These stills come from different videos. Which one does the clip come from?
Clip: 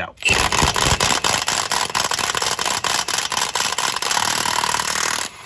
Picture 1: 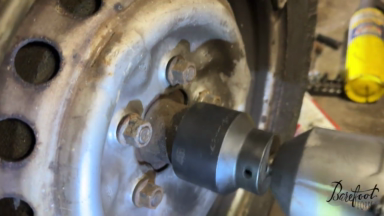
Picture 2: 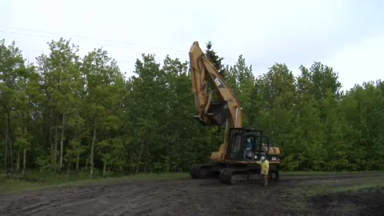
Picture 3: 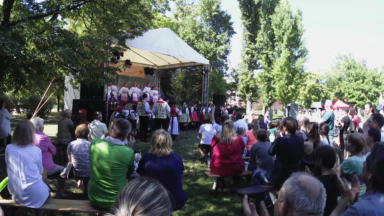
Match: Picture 1